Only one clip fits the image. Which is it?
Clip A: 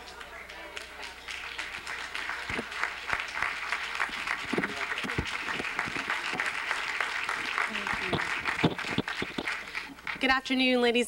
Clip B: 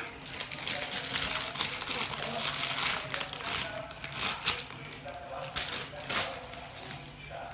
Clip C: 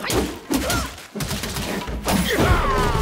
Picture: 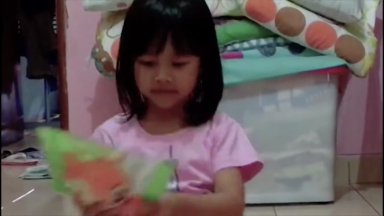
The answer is B